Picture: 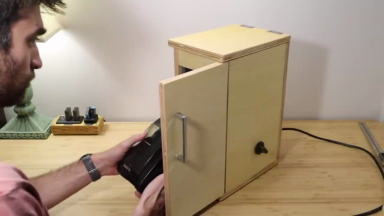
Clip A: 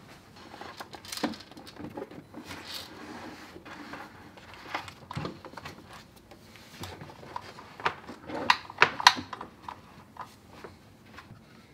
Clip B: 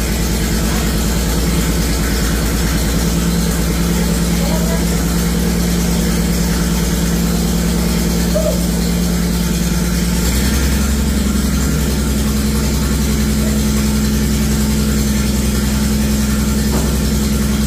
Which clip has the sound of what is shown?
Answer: A